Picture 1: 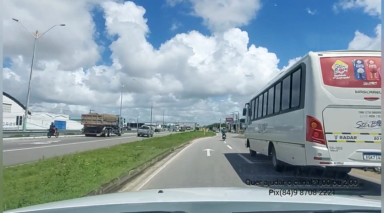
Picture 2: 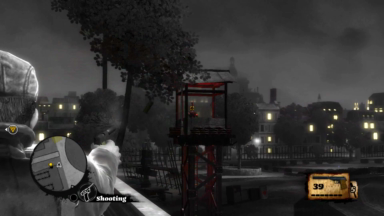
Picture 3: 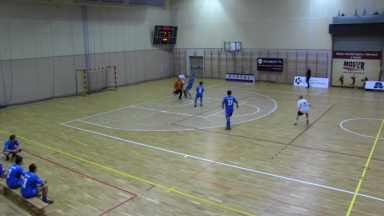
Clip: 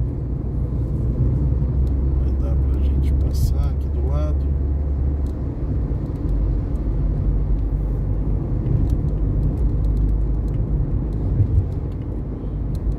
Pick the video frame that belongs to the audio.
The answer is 1